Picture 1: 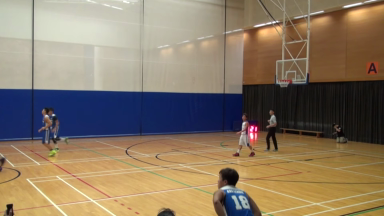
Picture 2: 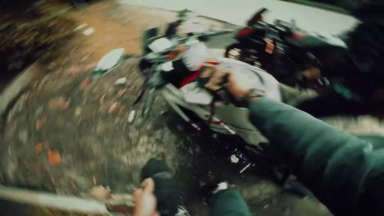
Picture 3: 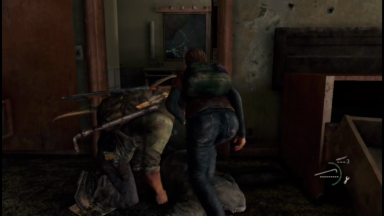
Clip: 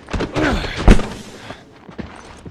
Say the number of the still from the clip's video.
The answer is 3